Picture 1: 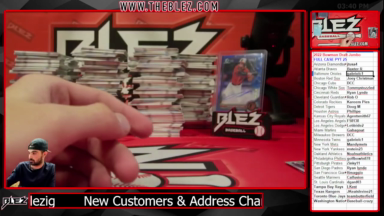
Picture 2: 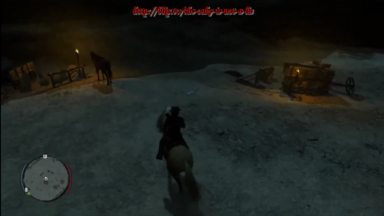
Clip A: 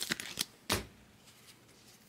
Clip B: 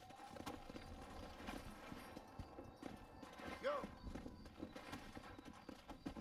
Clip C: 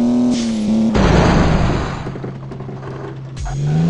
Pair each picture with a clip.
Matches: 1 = A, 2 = B